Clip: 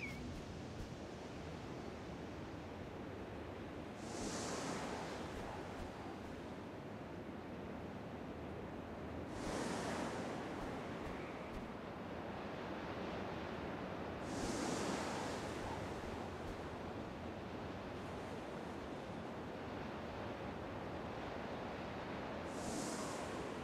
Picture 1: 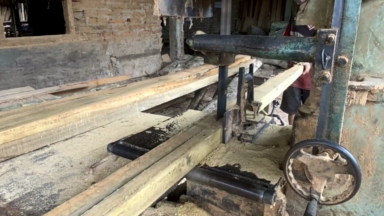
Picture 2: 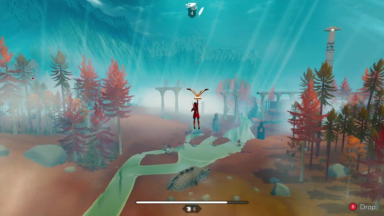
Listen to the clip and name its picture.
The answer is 2